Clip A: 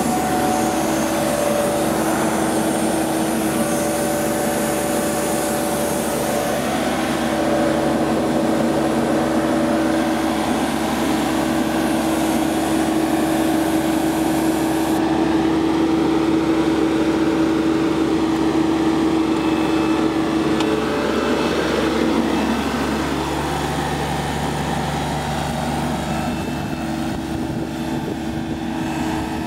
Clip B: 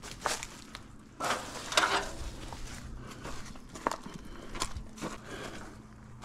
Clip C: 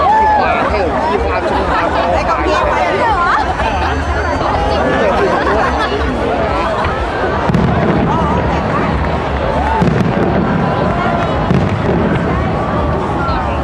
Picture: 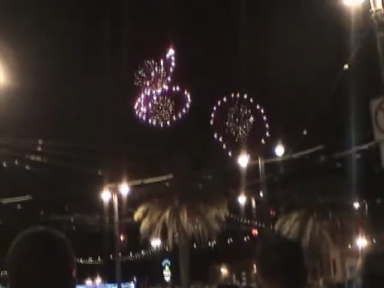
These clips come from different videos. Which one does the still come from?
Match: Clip C